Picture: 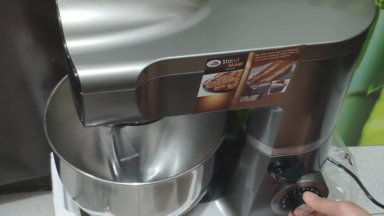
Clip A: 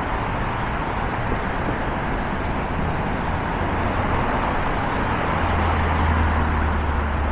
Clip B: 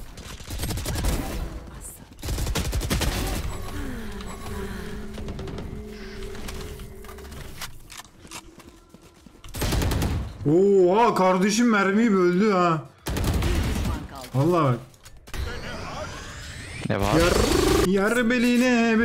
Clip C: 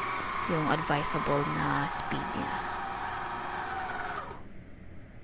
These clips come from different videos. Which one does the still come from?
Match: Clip C